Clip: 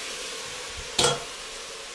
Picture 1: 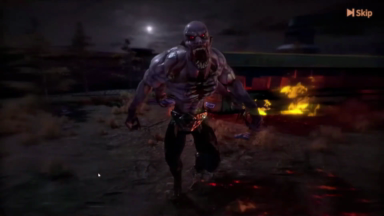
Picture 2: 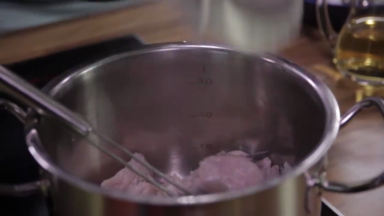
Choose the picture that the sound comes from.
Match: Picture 2